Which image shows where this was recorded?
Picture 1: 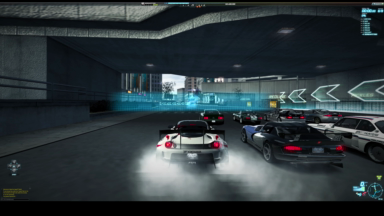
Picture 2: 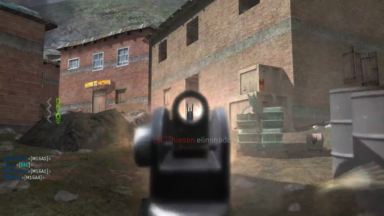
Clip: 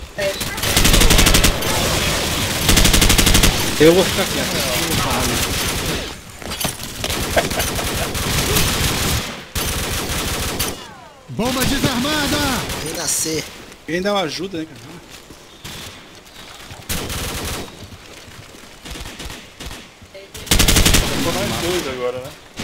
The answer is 2